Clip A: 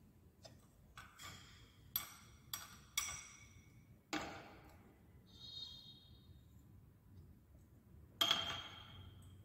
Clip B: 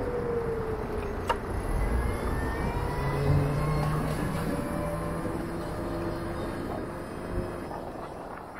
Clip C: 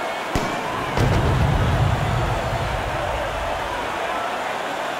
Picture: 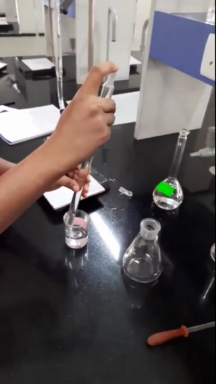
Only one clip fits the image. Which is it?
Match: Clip A